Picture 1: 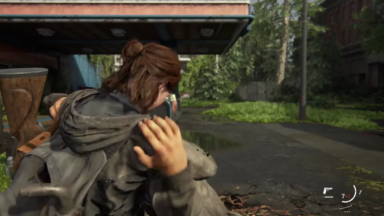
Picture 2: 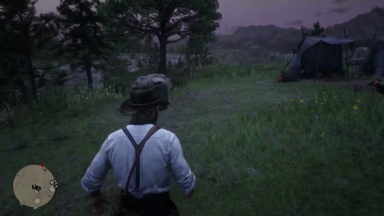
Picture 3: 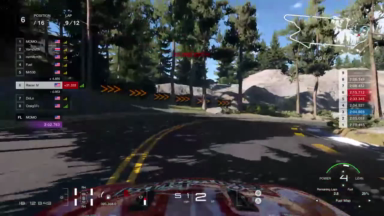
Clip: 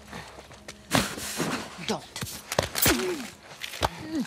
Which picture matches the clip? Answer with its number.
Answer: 1